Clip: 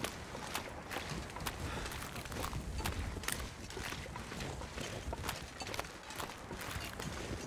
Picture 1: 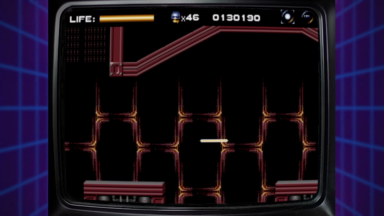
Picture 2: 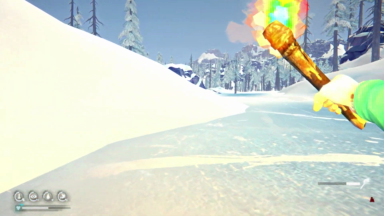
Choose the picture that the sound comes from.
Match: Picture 2